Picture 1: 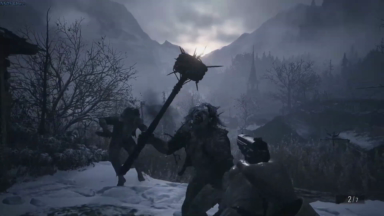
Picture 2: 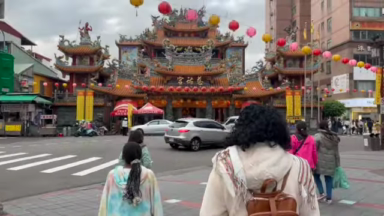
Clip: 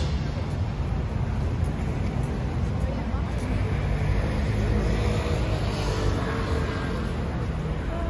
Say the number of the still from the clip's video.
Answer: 2